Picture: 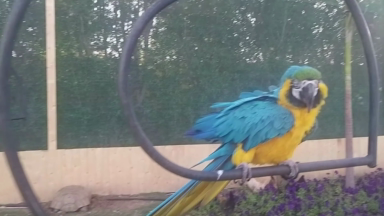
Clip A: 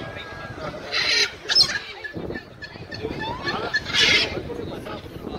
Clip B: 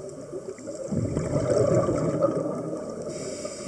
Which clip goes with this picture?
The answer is A